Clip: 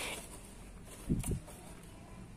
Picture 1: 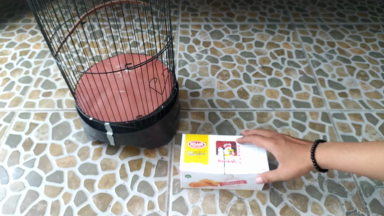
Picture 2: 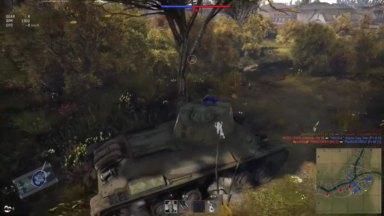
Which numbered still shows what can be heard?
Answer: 1